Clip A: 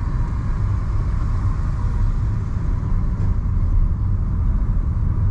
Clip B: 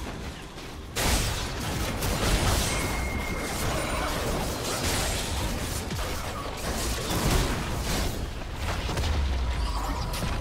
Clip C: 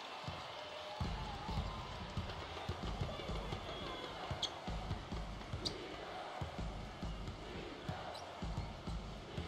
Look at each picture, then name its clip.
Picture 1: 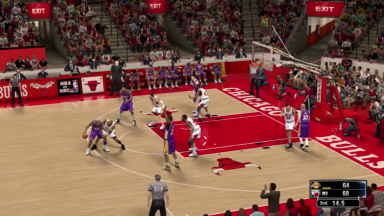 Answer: C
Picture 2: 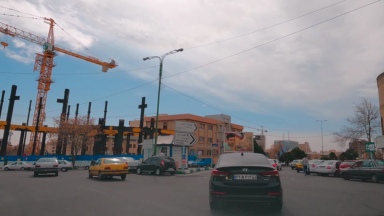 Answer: A